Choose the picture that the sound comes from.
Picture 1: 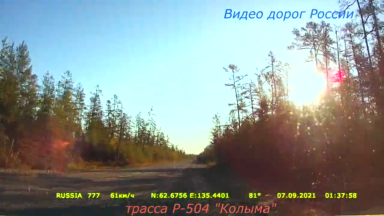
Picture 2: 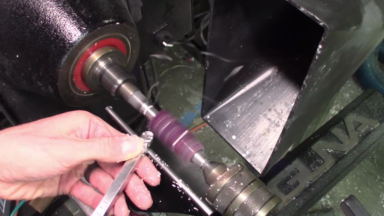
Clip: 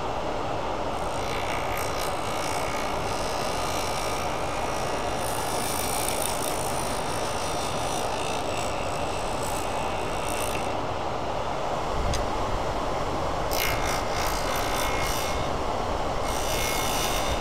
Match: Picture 2